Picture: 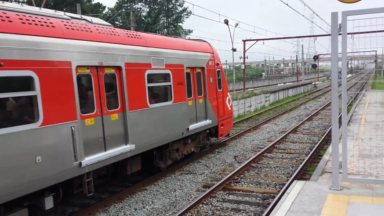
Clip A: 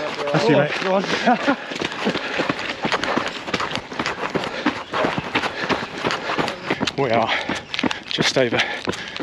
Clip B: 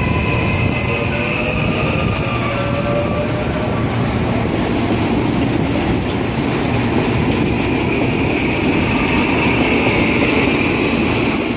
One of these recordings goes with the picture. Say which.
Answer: B